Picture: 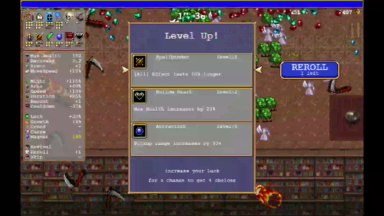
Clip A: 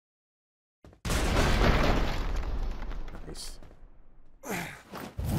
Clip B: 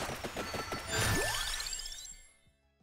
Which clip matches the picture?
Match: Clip B